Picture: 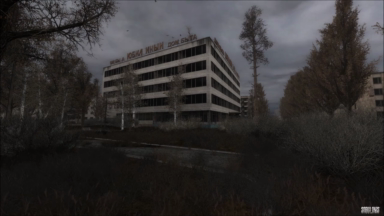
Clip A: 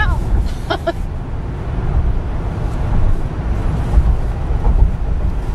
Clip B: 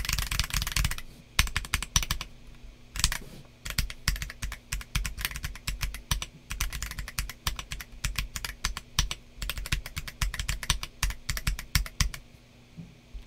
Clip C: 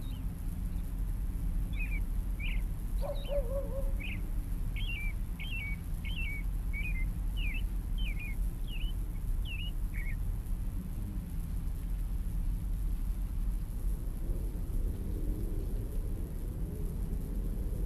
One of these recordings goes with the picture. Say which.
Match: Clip C